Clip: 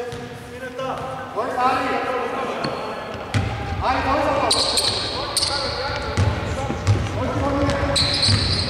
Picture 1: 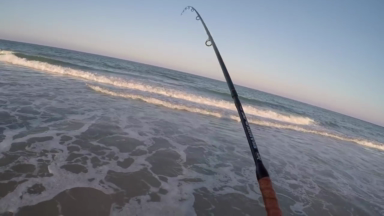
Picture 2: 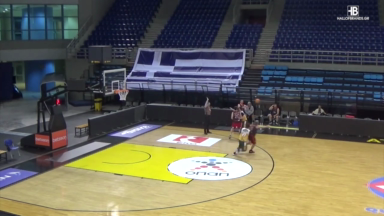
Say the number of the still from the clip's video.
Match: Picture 2